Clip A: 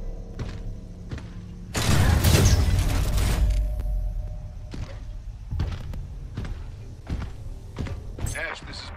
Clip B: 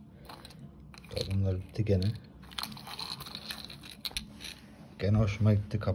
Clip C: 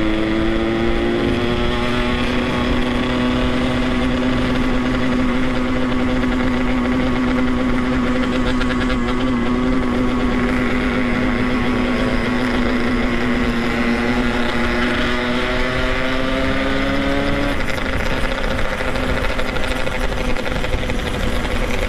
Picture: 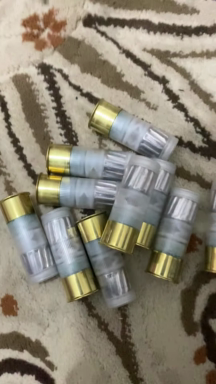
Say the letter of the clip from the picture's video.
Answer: B